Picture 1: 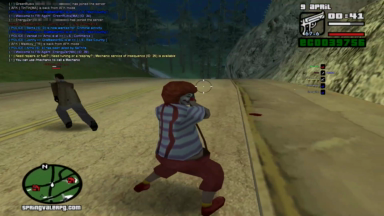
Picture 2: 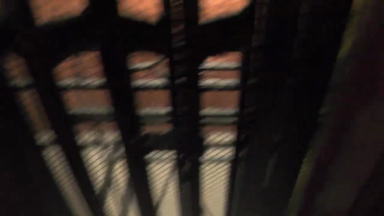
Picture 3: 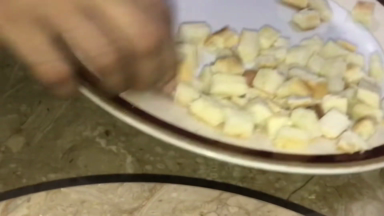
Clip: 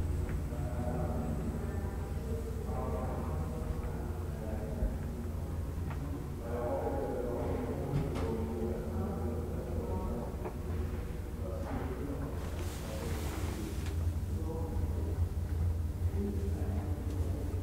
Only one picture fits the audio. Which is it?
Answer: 2